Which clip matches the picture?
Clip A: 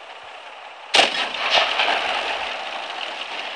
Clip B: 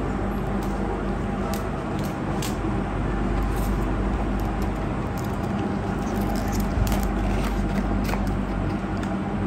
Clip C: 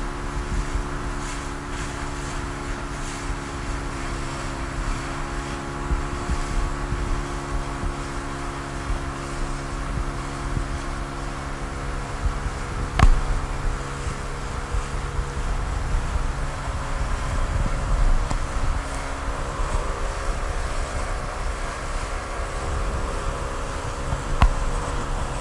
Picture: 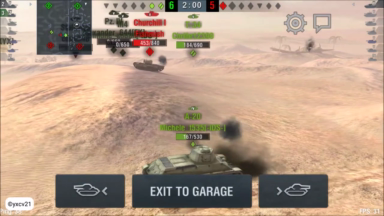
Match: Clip A